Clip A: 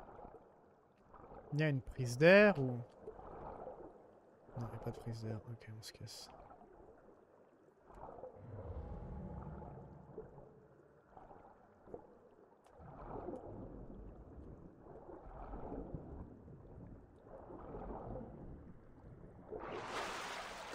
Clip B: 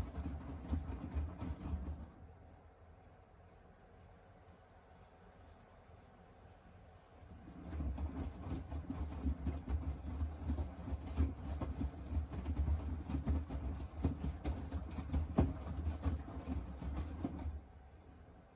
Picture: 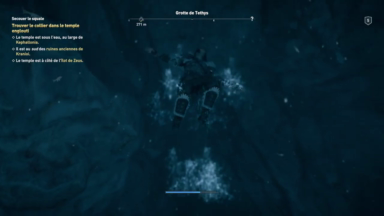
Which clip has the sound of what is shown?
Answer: A